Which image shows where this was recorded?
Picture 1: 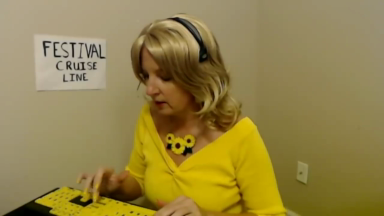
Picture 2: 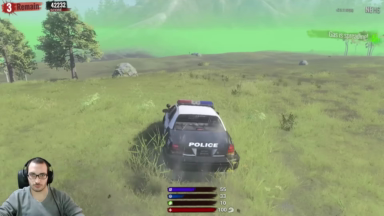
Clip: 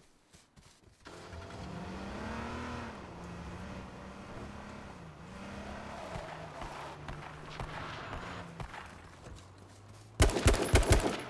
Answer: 2